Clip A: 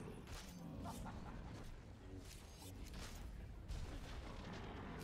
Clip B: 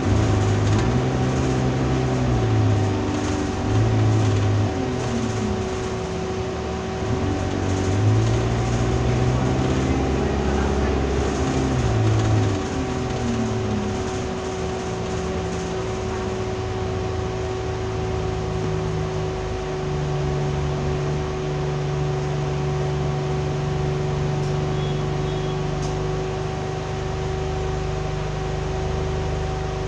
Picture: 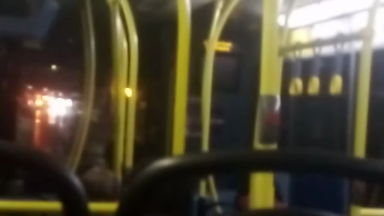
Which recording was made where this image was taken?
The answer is B